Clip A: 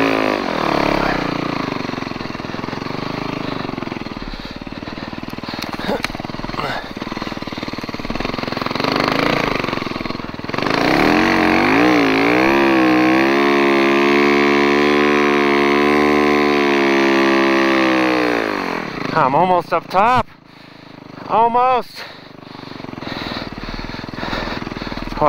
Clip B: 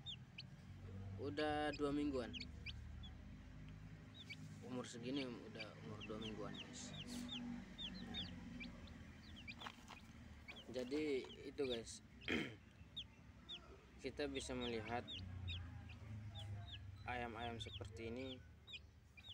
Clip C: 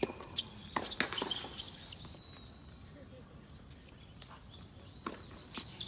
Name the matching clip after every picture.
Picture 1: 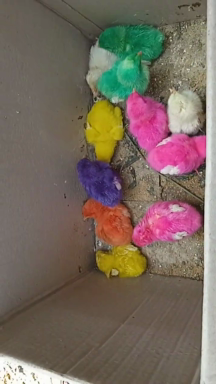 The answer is B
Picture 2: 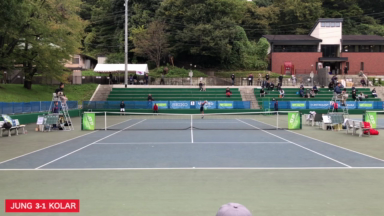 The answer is C